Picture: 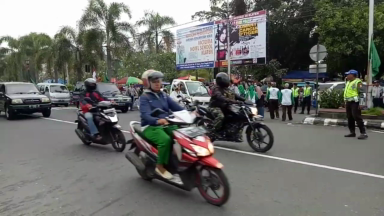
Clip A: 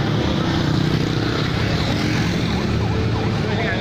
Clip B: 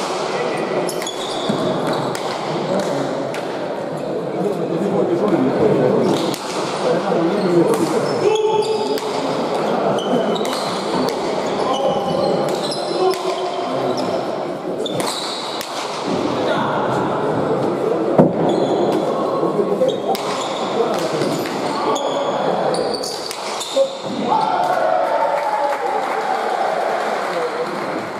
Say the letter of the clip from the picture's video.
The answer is A